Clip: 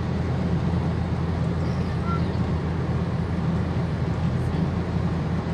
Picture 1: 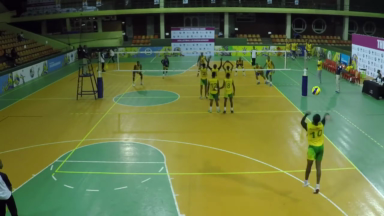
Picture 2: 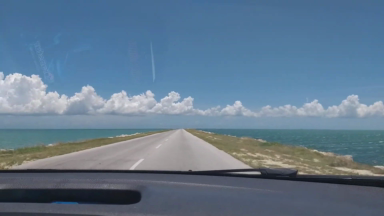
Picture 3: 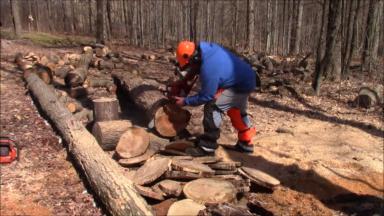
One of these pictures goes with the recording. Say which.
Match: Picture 2